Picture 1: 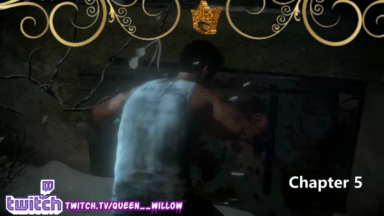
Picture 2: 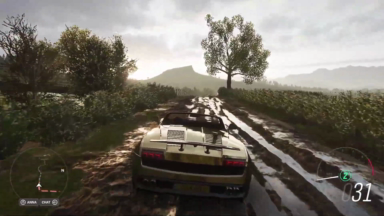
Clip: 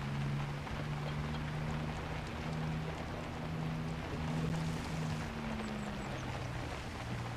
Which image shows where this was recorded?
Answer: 2